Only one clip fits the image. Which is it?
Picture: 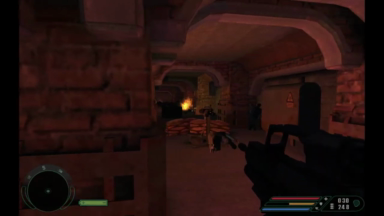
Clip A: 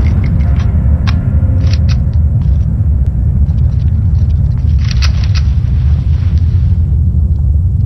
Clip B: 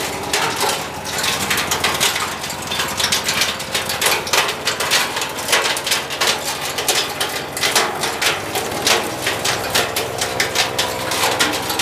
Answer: A